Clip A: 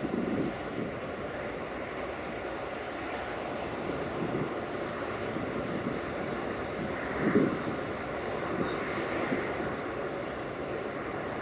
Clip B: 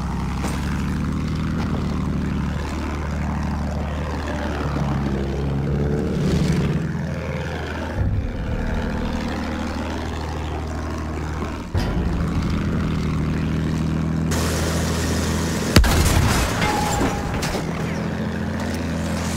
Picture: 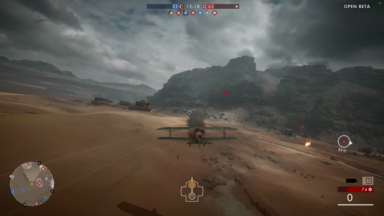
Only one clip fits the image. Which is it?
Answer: B